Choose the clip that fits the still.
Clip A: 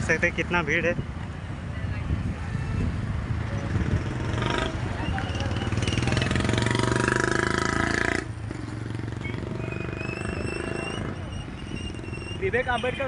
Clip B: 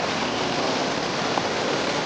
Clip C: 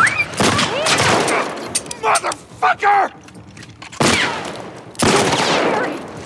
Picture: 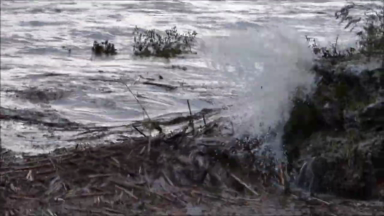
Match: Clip B